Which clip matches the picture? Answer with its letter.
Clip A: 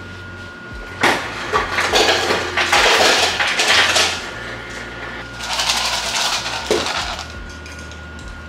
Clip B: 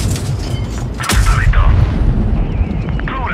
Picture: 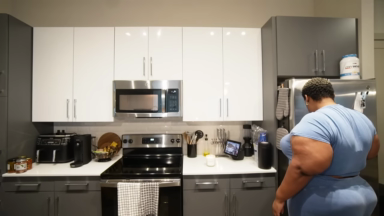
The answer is A